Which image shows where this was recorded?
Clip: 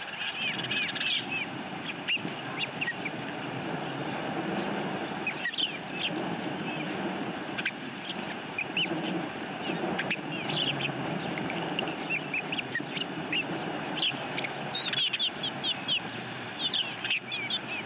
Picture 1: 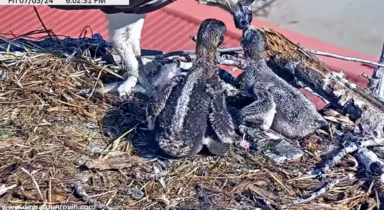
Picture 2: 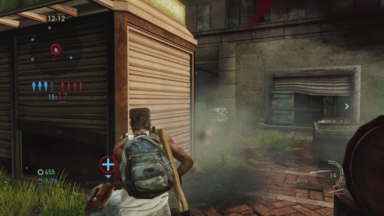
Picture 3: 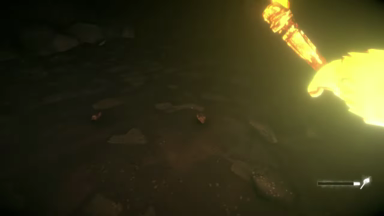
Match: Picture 1